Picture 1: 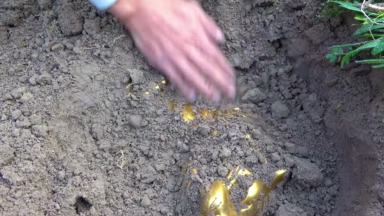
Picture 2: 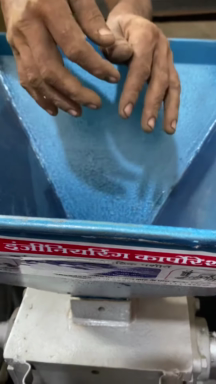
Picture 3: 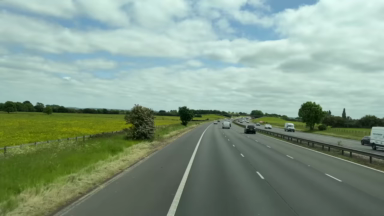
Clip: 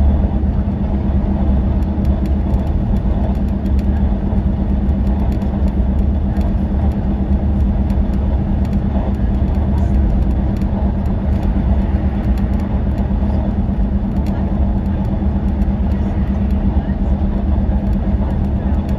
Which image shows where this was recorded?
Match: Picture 3